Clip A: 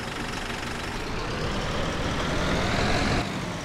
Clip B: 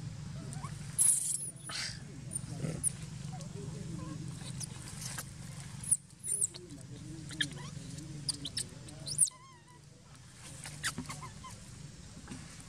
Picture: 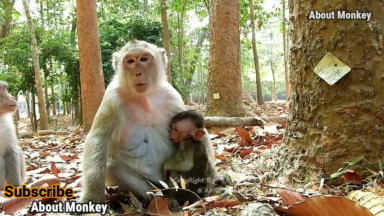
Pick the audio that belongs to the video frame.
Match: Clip B